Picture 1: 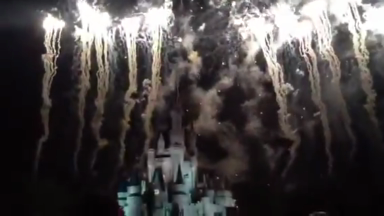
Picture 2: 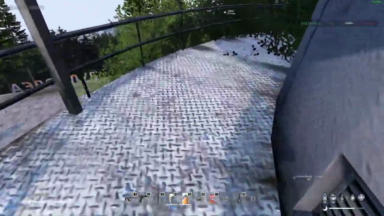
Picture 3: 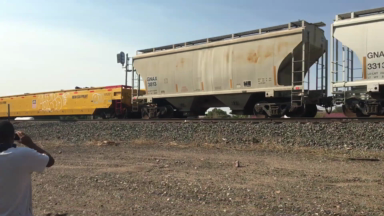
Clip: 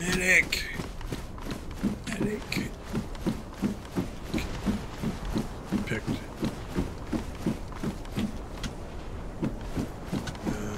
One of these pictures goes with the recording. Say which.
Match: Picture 2